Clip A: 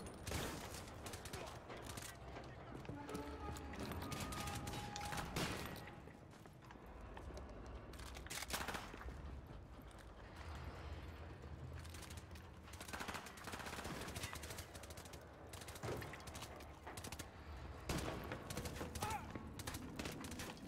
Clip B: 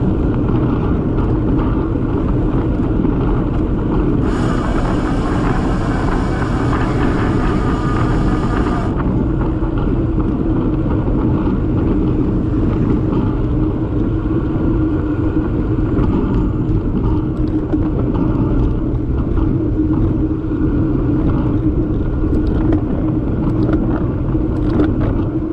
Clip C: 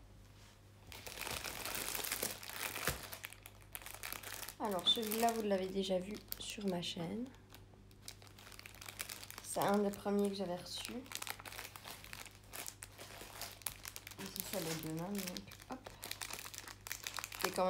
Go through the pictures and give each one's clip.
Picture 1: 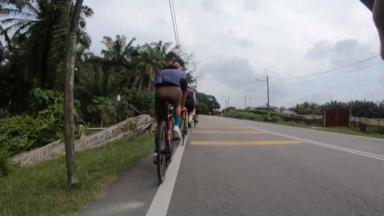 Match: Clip B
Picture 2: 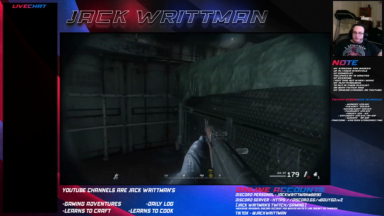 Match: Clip A